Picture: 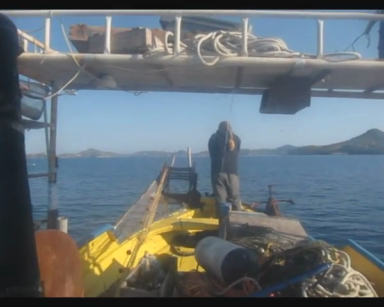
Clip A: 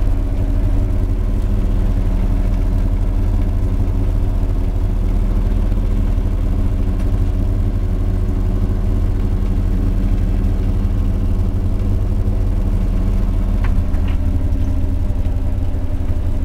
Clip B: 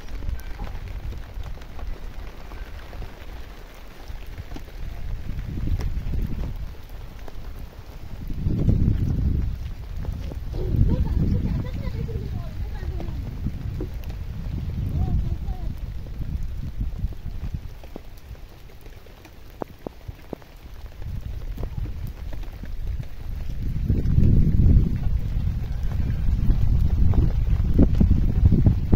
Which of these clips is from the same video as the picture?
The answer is A